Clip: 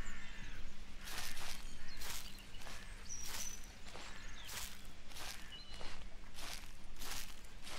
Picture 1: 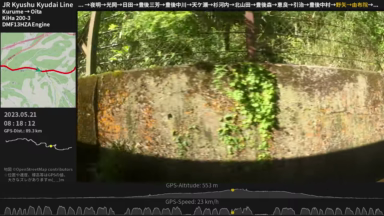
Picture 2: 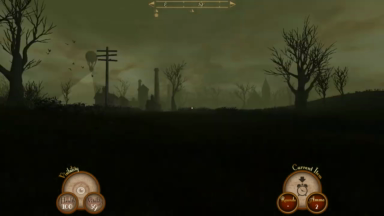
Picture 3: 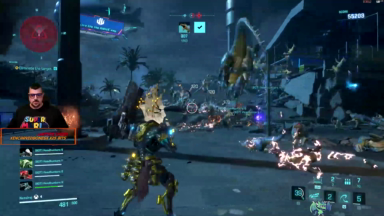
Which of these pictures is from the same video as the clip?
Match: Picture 2